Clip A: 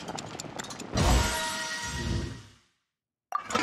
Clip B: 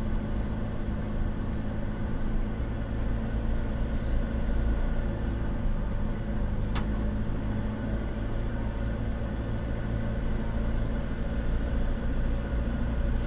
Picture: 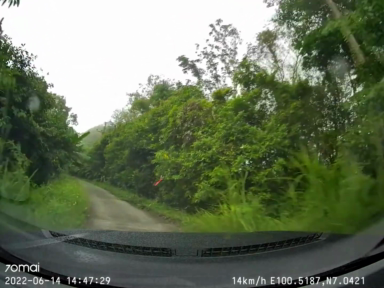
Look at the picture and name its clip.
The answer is B